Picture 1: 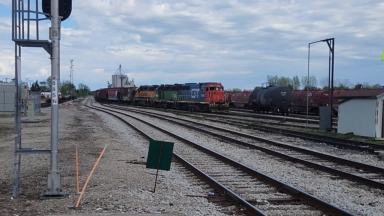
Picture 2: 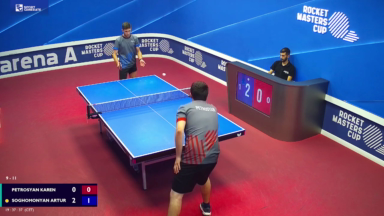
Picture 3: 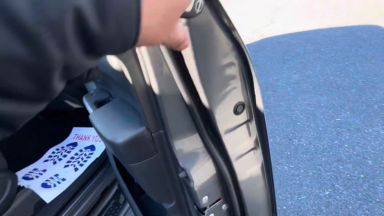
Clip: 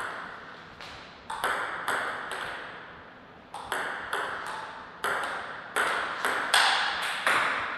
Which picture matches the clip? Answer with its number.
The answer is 2